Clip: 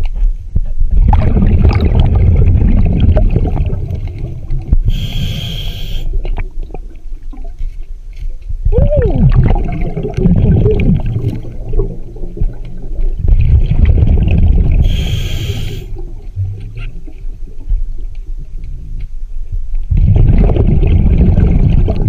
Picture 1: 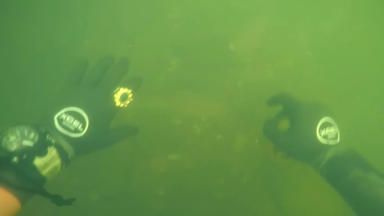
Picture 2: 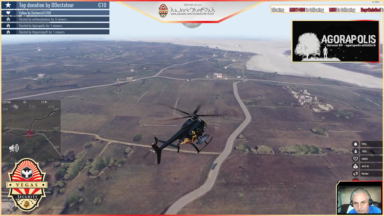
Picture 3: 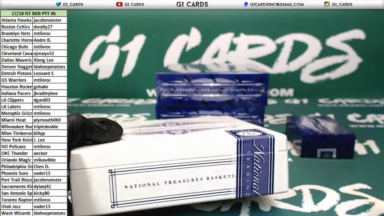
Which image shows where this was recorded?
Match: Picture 1